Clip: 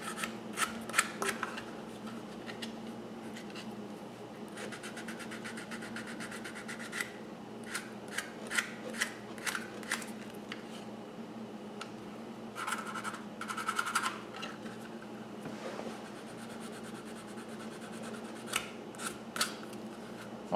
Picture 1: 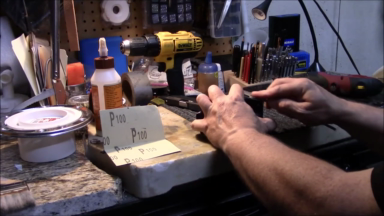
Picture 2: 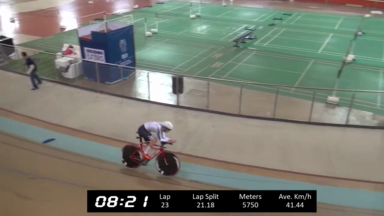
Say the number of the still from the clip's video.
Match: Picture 1